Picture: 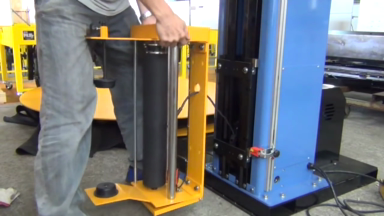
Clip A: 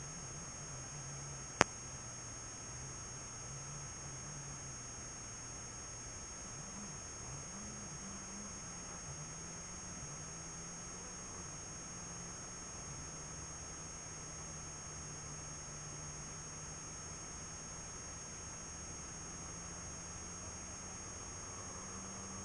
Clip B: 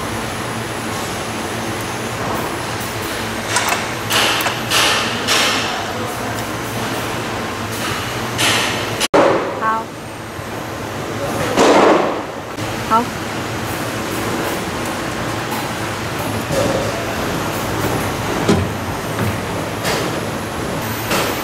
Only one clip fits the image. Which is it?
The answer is B